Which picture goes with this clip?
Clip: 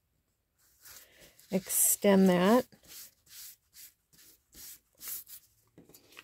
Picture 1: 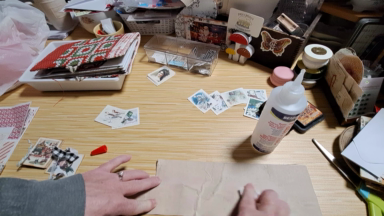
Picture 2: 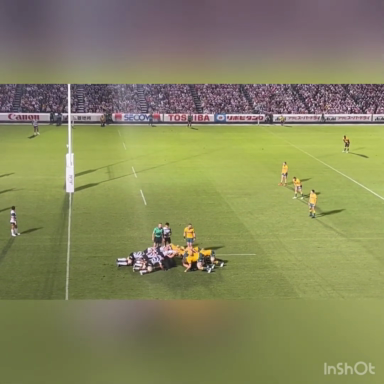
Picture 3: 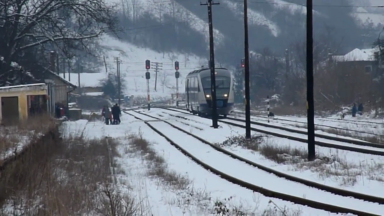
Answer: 1